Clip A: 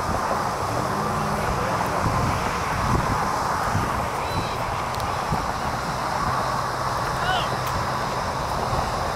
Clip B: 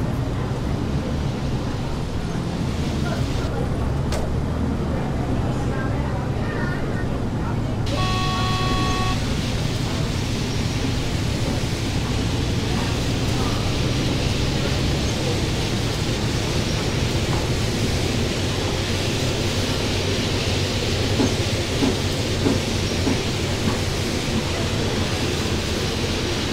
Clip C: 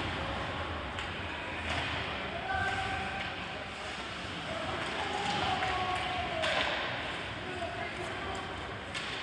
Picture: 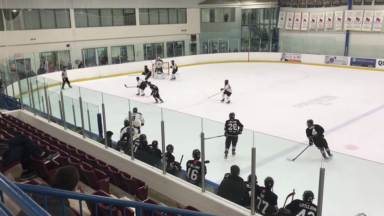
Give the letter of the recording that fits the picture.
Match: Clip C